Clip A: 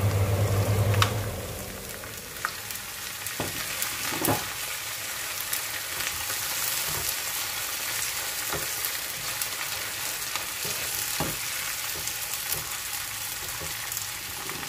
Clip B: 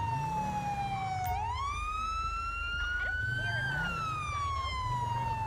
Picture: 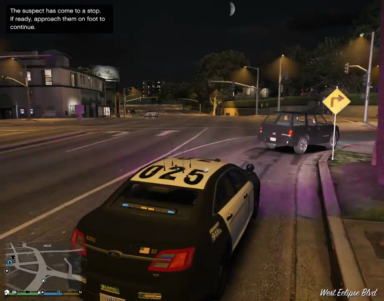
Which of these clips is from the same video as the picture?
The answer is B